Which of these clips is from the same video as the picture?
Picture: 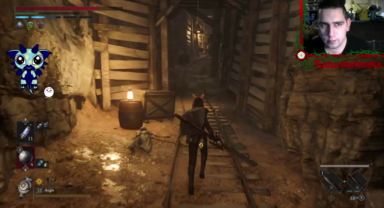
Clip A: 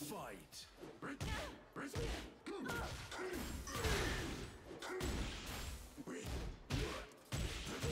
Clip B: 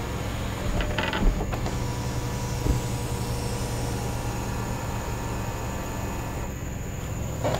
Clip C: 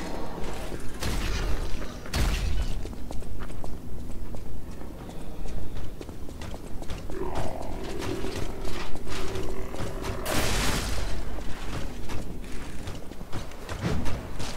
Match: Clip C